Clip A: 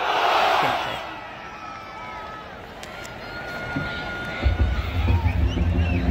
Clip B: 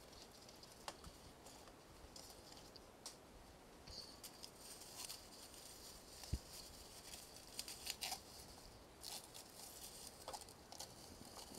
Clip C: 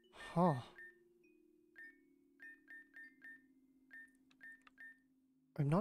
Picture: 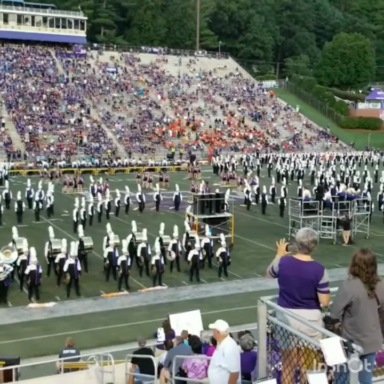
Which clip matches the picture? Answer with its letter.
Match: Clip A